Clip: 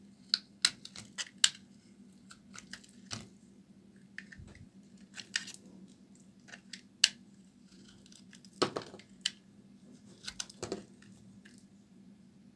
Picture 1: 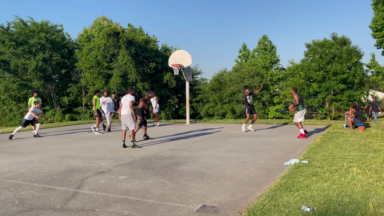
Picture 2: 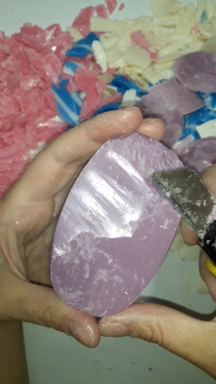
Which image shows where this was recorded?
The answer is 2